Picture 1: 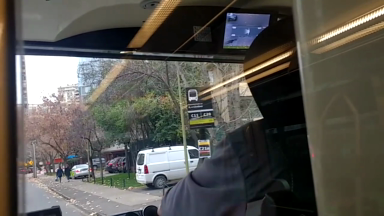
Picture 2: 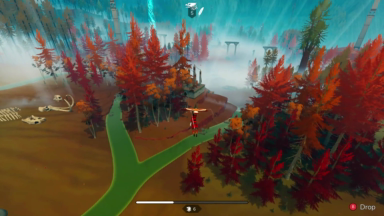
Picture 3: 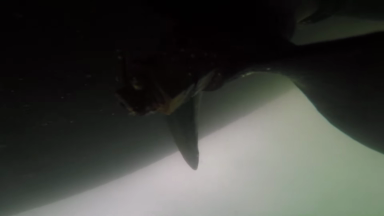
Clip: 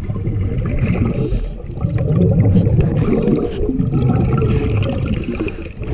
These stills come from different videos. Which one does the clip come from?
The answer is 3